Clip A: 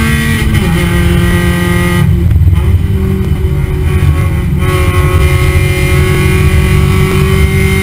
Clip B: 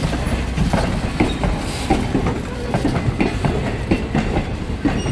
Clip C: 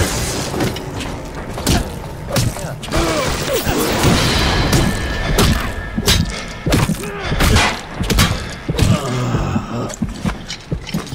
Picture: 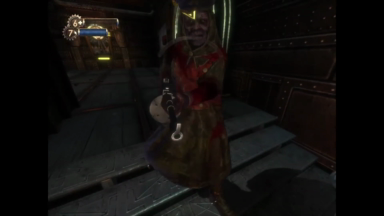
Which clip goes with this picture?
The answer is C